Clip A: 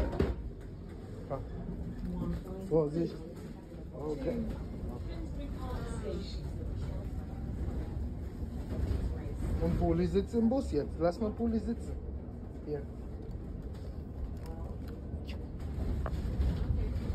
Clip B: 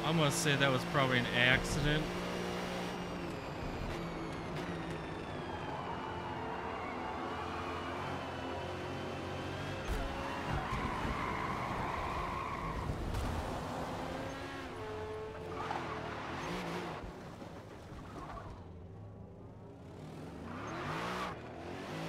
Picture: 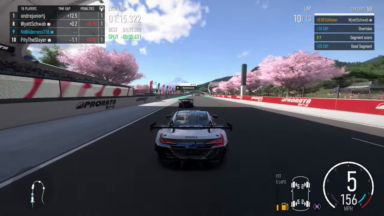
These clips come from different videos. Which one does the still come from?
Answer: B